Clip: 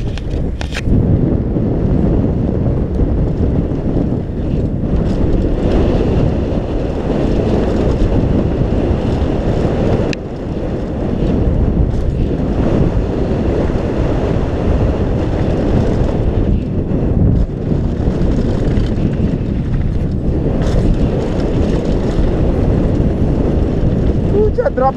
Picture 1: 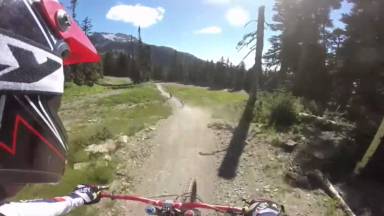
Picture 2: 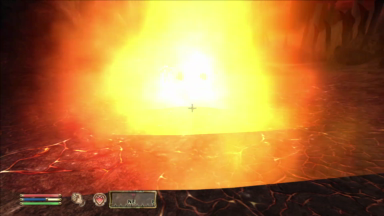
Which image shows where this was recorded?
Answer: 1